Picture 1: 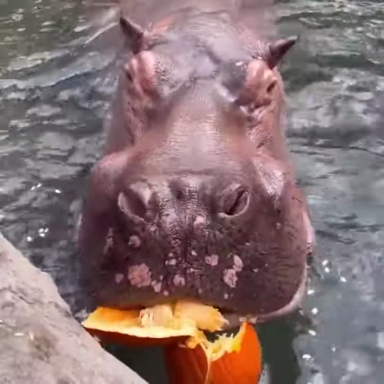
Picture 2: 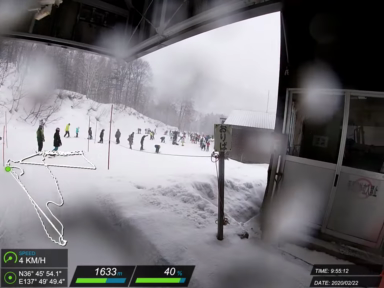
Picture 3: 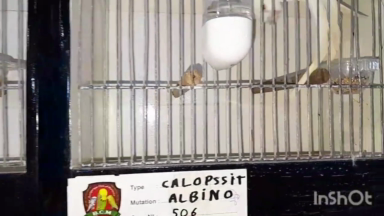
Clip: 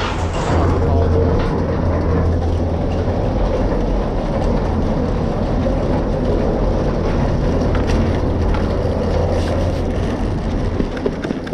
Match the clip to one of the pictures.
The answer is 2